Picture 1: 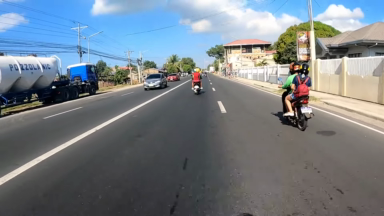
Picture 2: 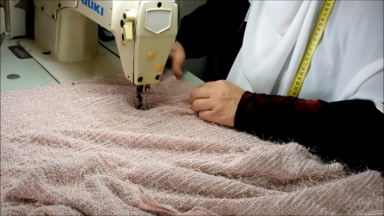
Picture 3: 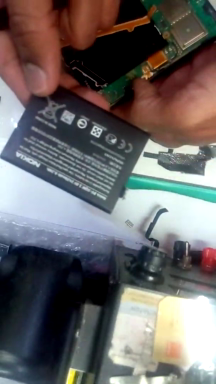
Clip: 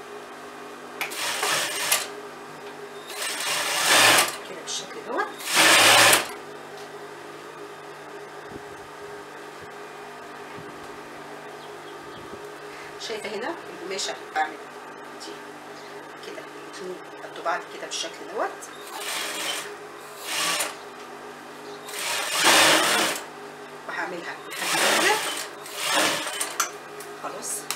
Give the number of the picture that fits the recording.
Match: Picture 2